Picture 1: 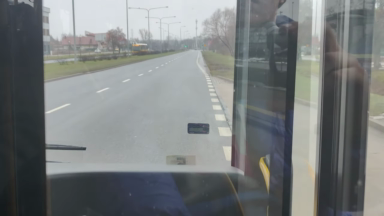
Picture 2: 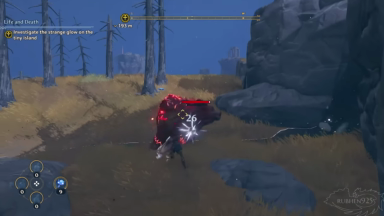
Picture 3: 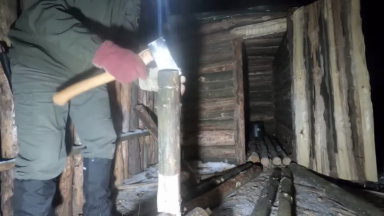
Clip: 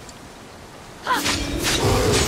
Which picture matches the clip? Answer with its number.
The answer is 2